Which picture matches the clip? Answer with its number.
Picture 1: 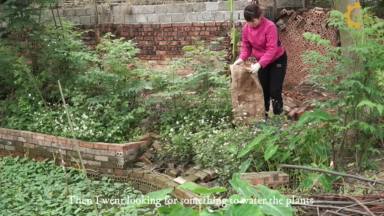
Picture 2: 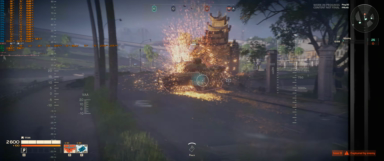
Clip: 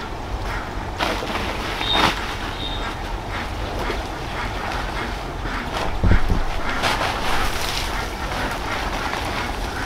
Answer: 1